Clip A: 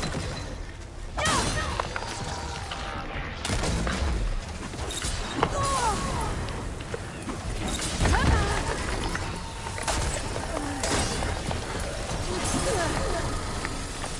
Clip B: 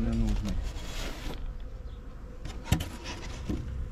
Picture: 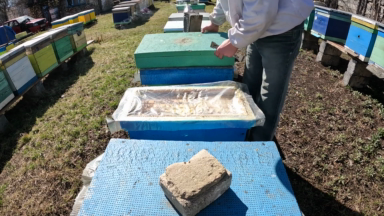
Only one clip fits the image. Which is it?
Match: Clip B